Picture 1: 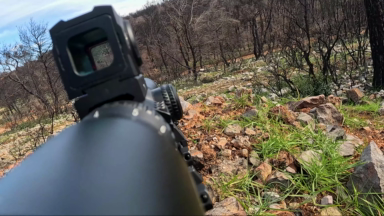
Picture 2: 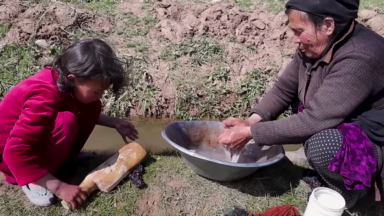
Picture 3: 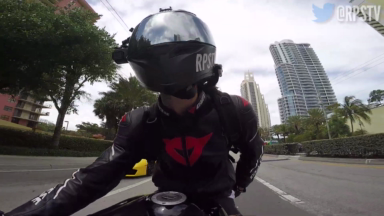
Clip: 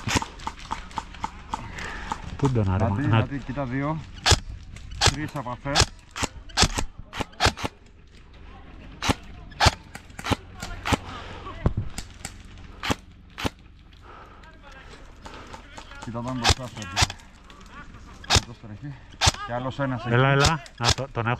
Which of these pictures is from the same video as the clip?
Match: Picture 1